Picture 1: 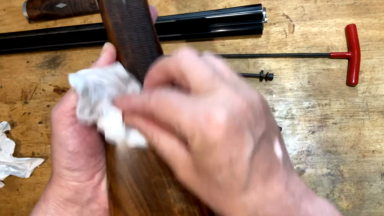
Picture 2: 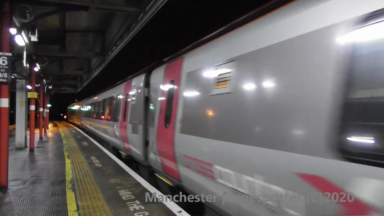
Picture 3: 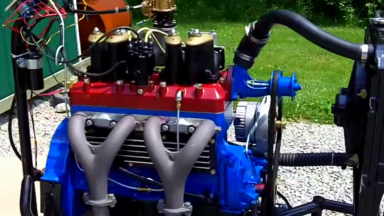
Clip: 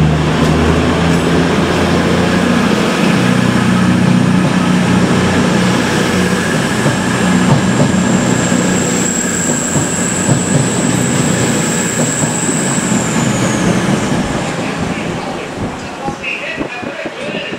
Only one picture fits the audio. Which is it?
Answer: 2